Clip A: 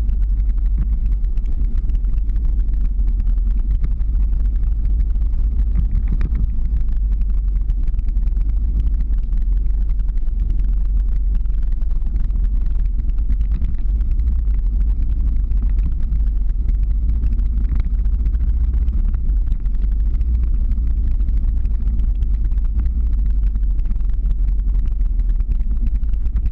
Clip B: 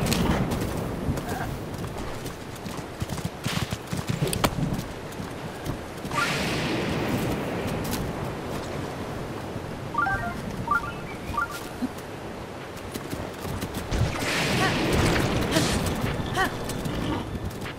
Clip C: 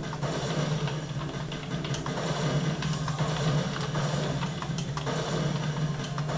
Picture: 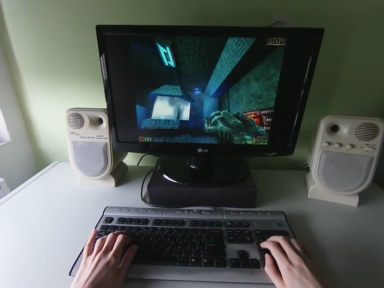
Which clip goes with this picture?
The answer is C